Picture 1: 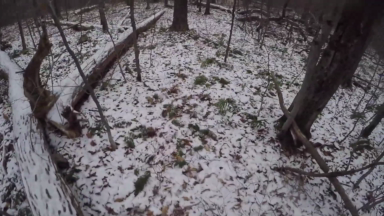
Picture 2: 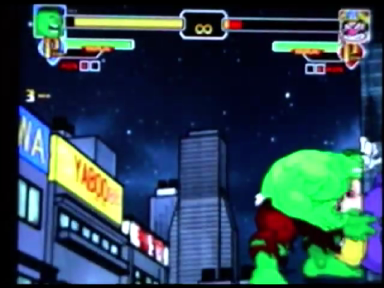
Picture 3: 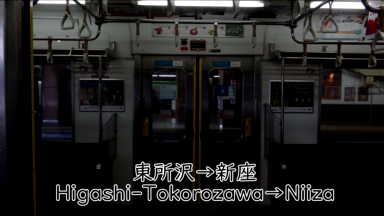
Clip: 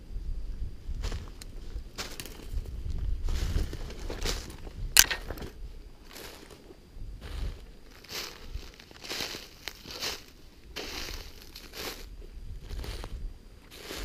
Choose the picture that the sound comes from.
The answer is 1